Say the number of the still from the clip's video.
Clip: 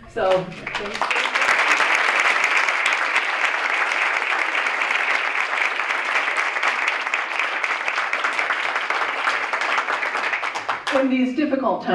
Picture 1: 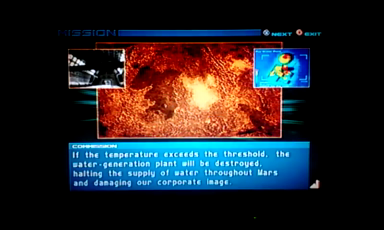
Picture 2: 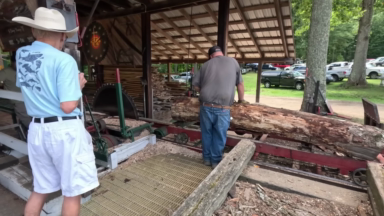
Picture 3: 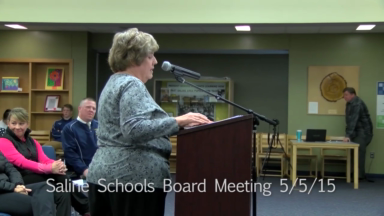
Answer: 3